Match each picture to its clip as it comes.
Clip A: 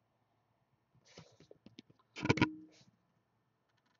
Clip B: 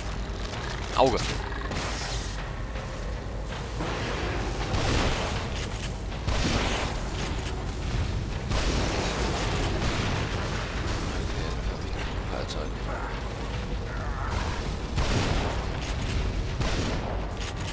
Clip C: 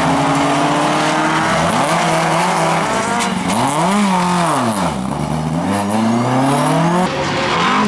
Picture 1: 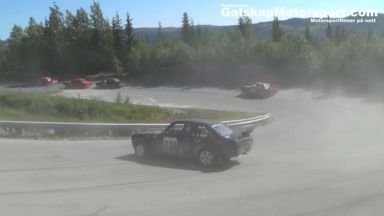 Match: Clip C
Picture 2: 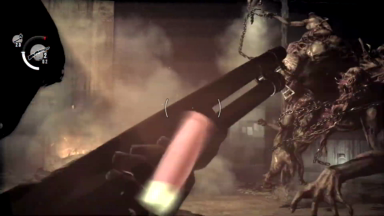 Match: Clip B